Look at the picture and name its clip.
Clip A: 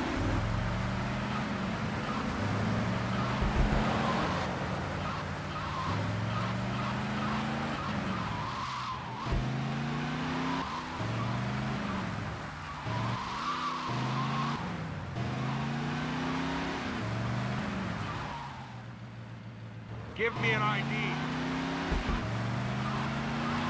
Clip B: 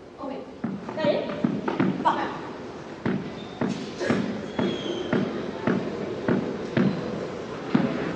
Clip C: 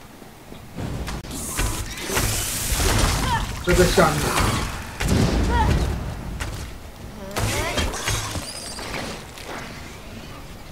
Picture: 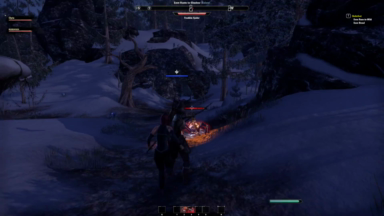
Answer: C